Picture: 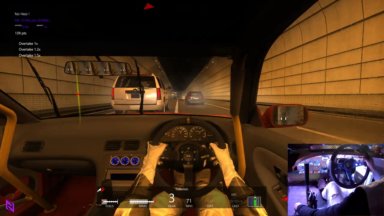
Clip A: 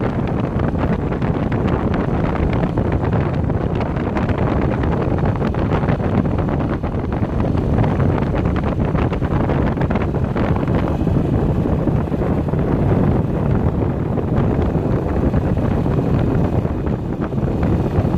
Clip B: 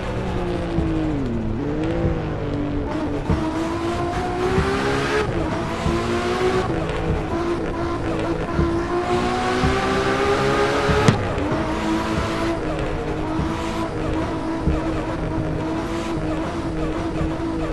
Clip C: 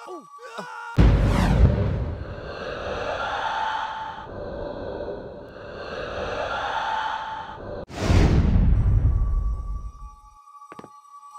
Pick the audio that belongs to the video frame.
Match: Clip B